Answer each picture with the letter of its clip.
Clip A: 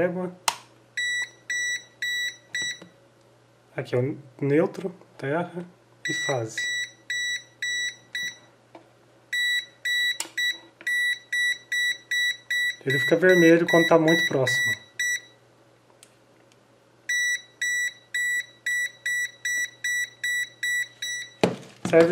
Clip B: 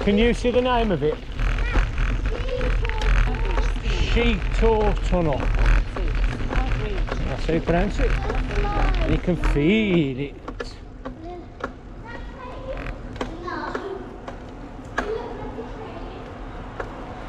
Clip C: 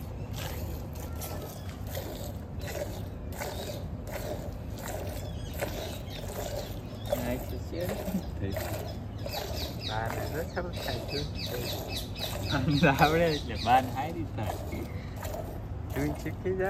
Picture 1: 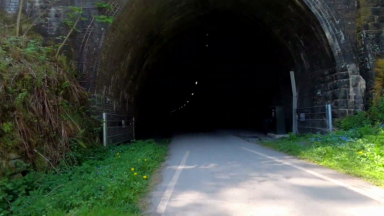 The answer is B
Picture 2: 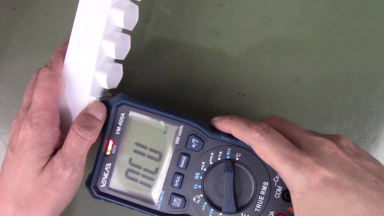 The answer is A